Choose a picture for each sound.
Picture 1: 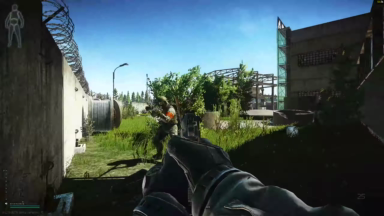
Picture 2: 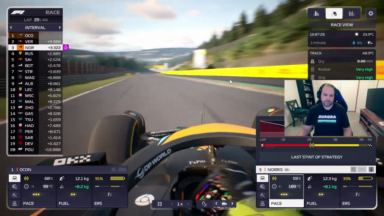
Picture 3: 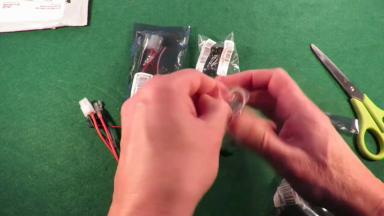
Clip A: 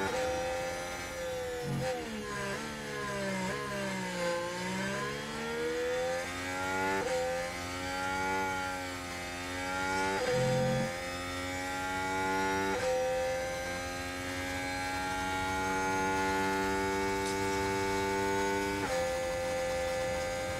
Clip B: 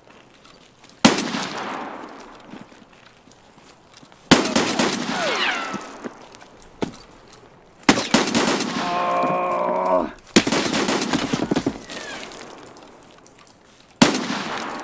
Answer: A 2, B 1